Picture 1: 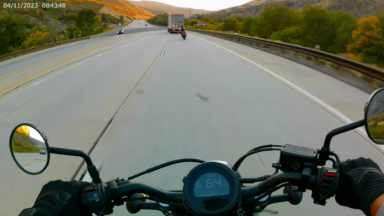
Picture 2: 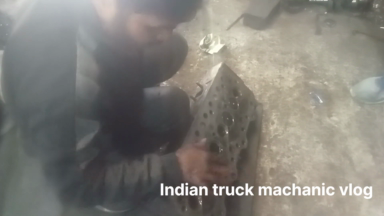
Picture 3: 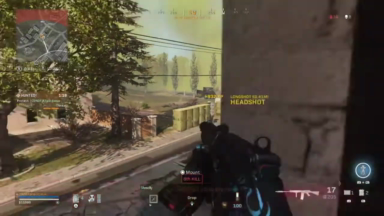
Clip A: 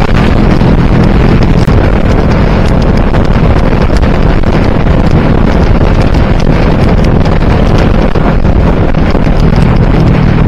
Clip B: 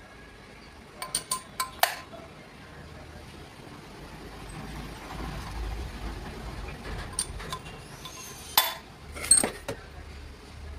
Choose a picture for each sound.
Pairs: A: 1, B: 2